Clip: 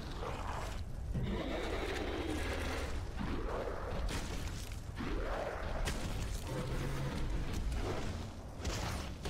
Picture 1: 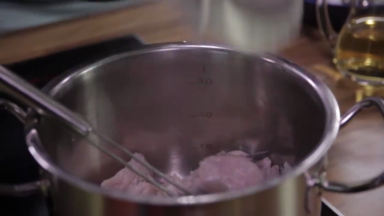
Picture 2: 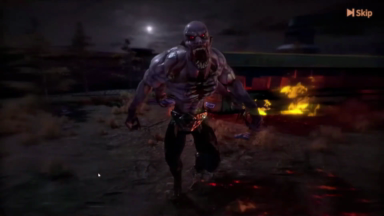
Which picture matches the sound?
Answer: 2